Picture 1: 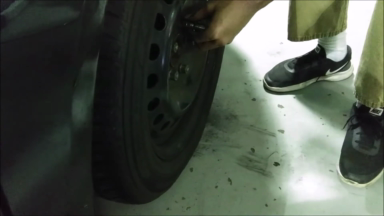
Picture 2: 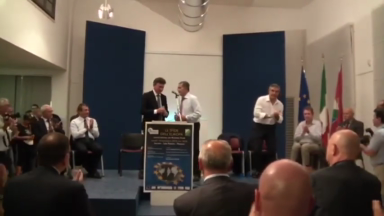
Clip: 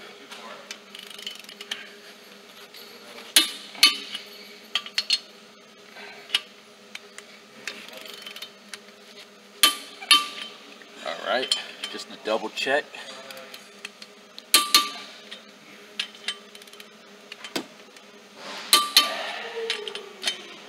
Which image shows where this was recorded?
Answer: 1